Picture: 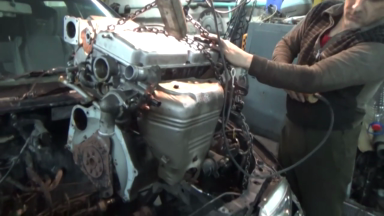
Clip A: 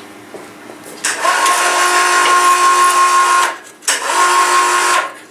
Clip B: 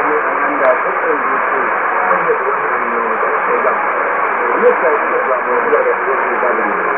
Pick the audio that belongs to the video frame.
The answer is A